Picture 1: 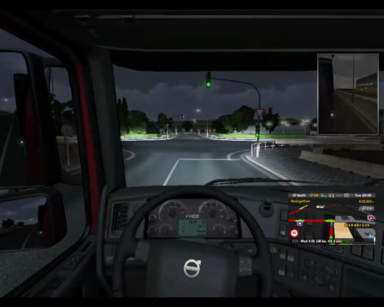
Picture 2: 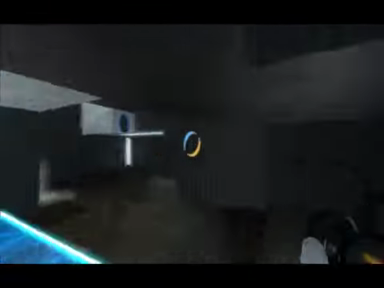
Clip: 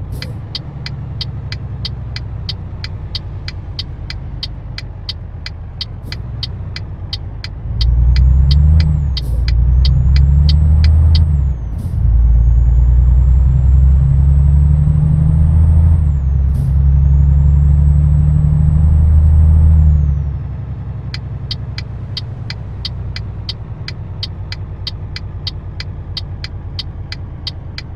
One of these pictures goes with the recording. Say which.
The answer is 1